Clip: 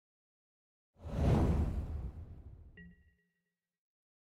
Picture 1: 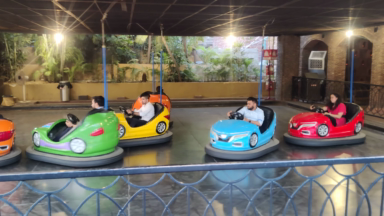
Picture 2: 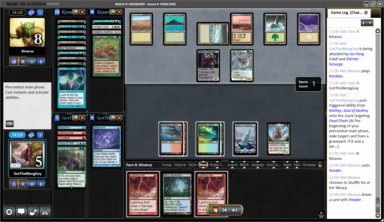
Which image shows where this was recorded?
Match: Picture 2